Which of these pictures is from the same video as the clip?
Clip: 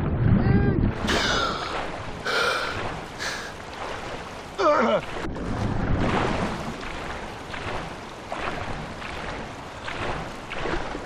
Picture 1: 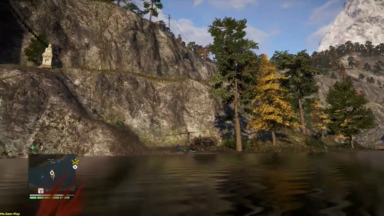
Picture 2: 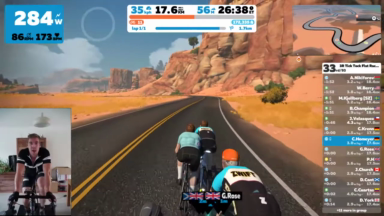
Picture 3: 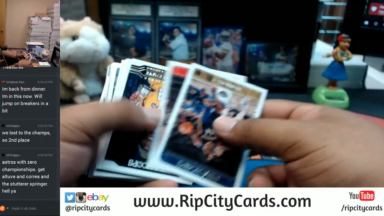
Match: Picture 1